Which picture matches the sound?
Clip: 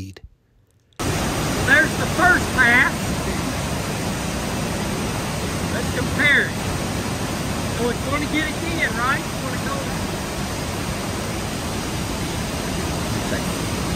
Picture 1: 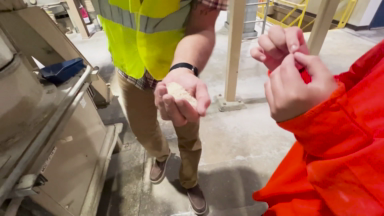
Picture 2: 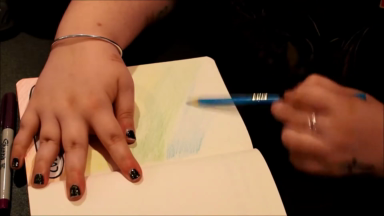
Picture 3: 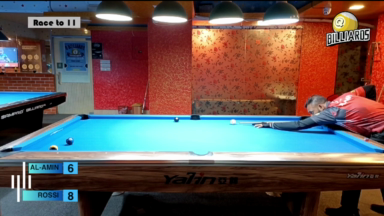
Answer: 1